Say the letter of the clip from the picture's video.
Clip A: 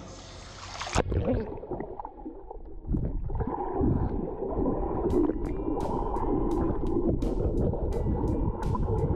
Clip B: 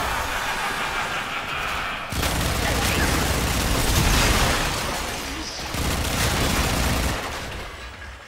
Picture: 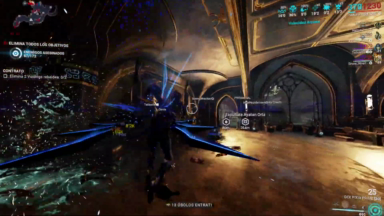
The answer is B